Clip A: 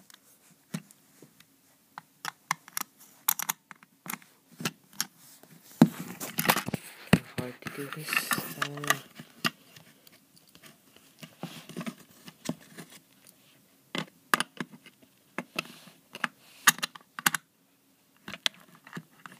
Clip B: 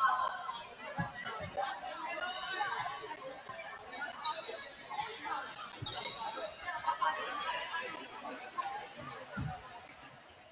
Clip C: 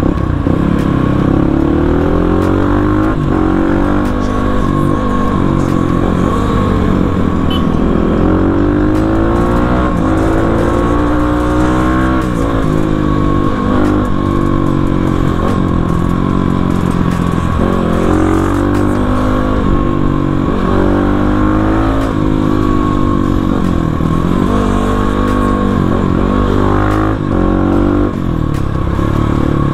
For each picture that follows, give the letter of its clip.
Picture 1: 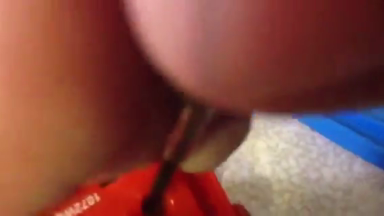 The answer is A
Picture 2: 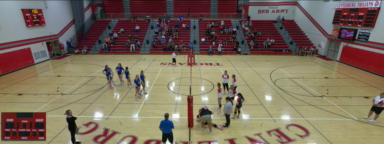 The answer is B